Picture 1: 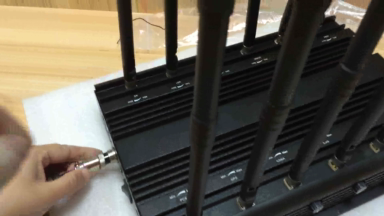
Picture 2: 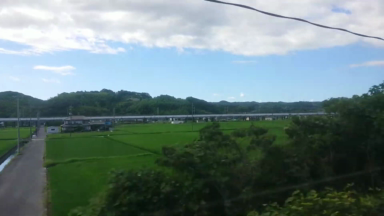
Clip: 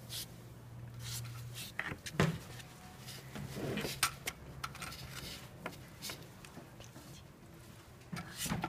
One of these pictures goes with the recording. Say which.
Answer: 1